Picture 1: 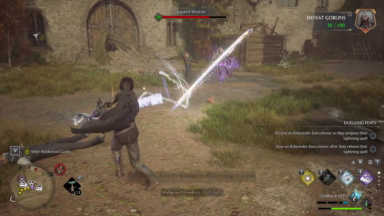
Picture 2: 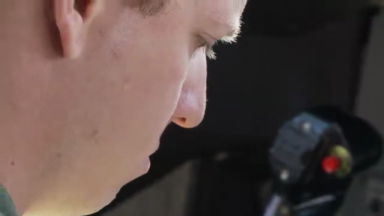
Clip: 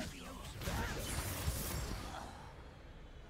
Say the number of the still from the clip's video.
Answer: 1